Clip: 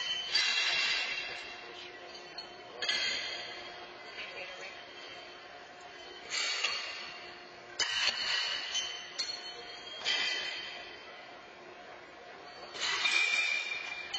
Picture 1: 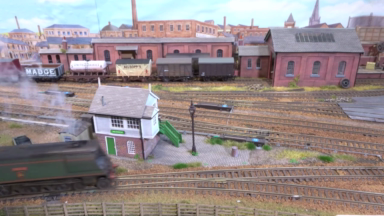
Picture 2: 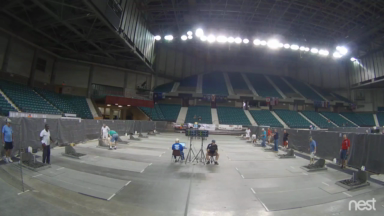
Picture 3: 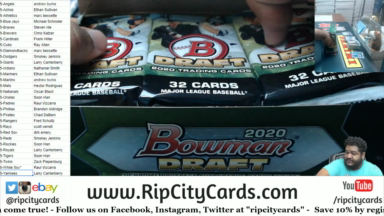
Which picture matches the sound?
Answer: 2